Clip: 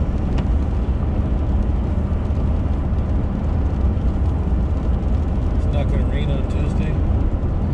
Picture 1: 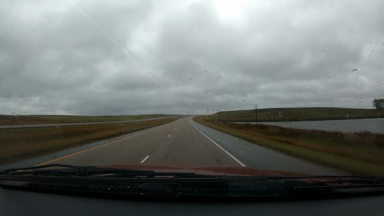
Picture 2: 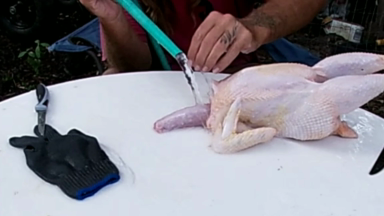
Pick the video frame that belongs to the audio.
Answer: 1